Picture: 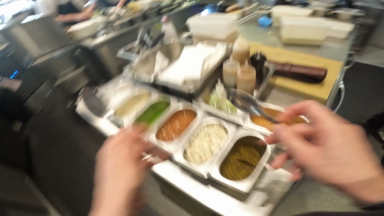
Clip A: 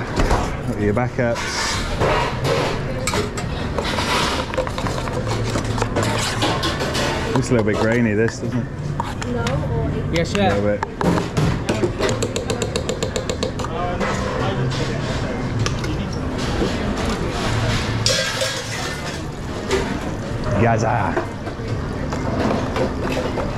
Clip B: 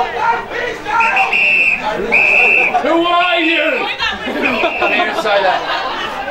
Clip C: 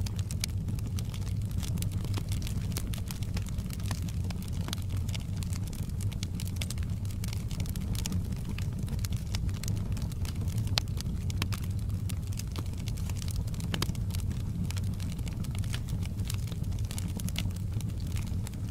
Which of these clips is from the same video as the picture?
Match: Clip A